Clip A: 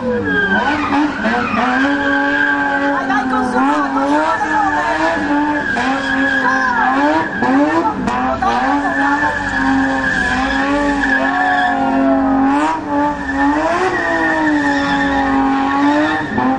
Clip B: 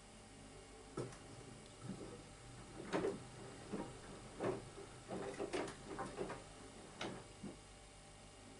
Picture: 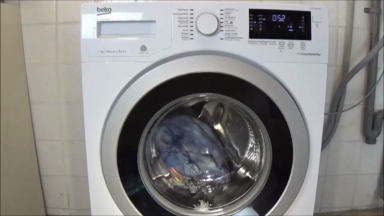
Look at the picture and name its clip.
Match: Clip B